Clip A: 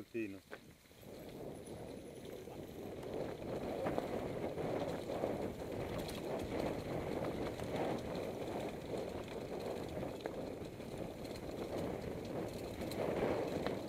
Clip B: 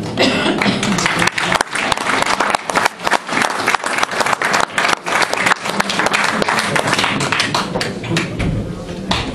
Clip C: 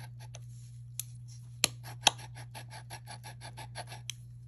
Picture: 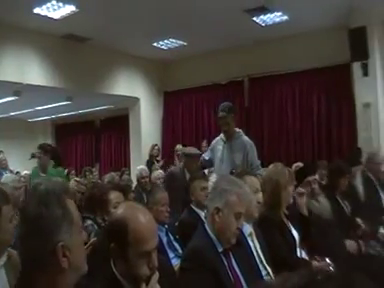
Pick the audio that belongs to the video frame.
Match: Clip B